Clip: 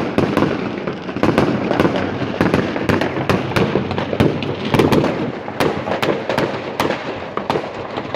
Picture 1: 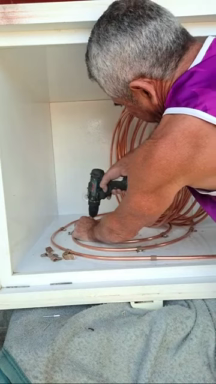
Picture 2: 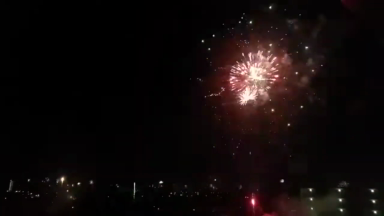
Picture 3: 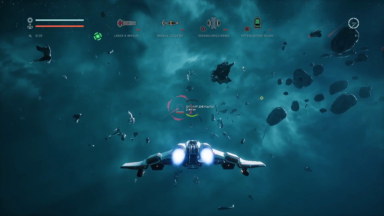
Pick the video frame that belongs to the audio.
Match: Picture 2